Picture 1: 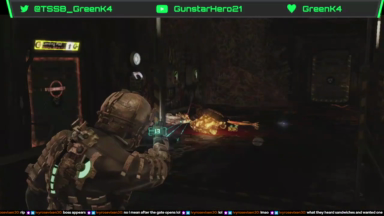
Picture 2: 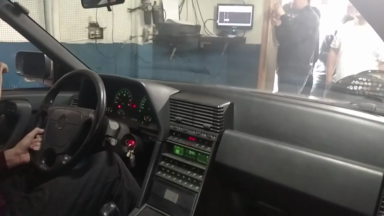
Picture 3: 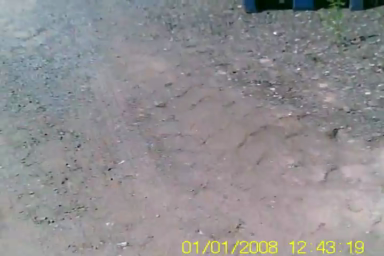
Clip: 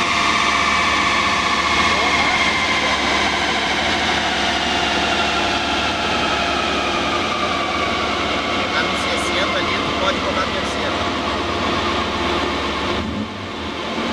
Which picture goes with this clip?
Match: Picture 2